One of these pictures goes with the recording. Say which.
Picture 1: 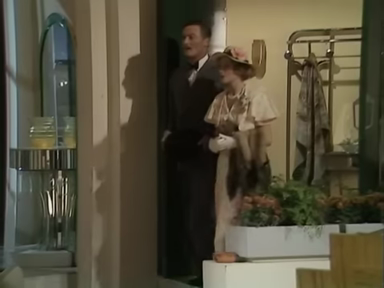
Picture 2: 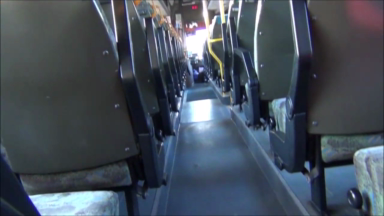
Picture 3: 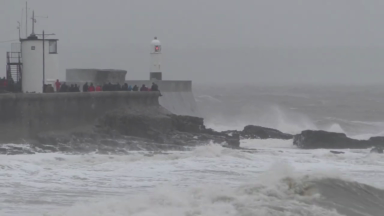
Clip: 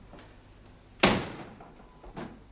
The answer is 1